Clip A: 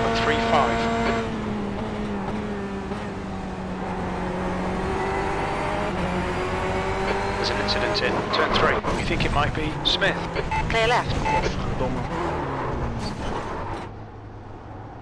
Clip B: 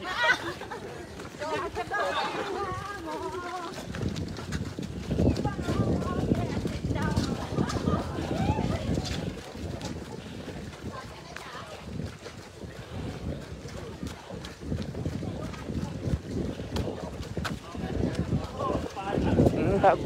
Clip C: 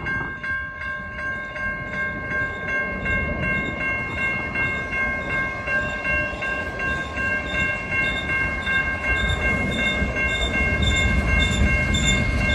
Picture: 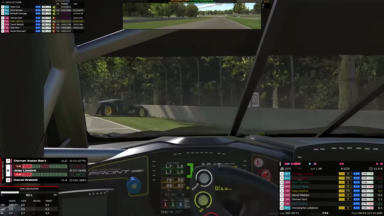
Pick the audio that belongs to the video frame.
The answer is A